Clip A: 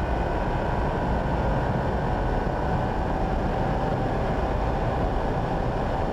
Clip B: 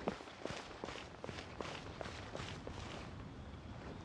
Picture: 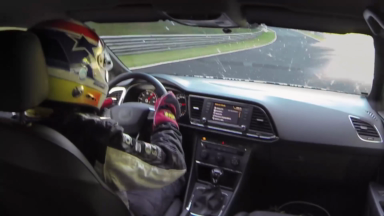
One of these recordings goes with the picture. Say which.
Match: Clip A